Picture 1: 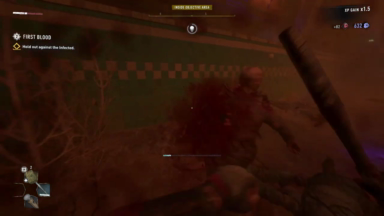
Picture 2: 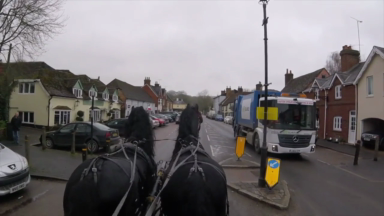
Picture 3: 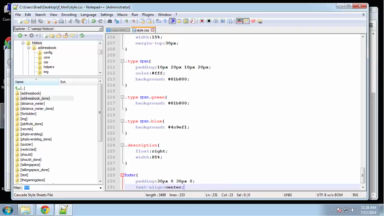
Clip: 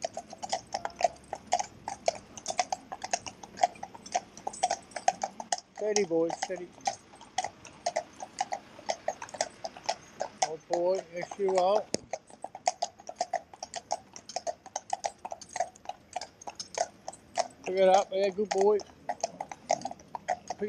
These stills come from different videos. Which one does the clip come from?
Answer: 2